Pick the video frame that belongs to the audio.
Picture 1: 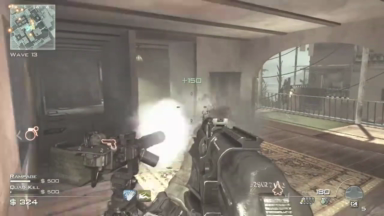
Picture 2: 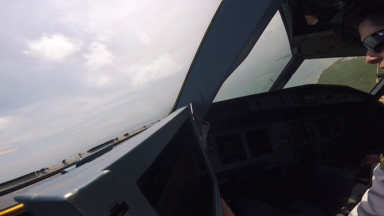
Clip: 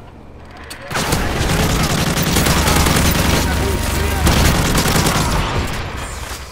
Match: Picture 1